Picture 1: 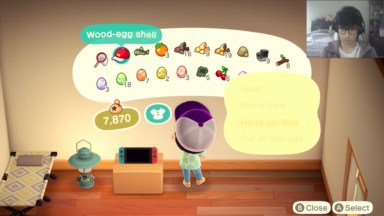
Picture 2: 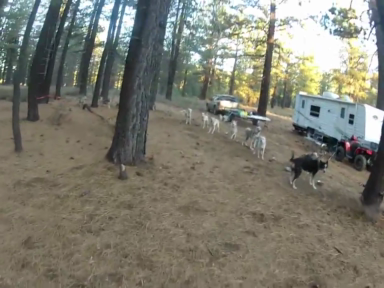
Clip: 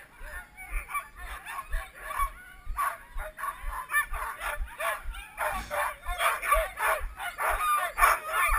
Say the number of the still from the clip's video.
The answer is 2